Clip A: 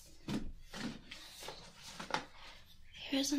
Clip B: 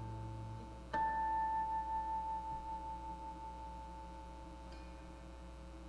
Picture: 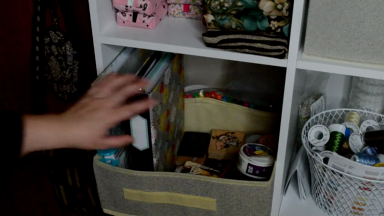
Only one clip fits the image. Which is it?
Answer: A